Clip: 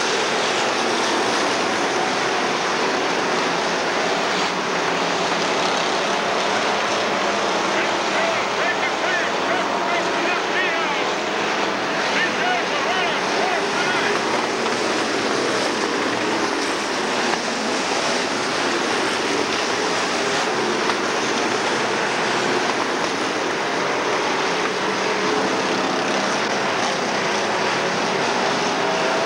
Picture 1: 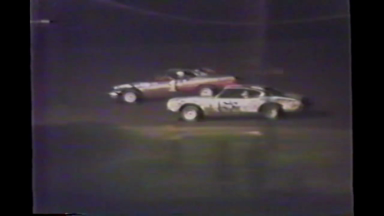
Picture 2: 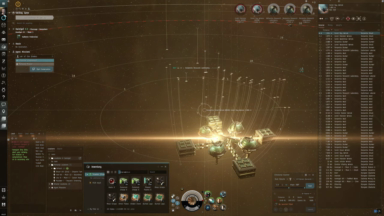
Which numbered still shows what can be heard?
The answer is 1